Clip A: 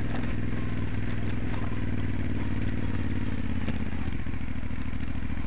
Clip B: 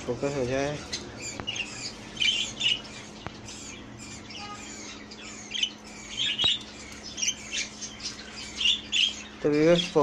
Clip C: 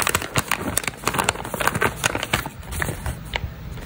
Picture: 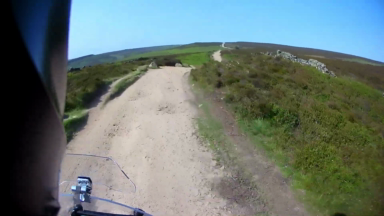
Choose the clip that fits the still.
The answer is A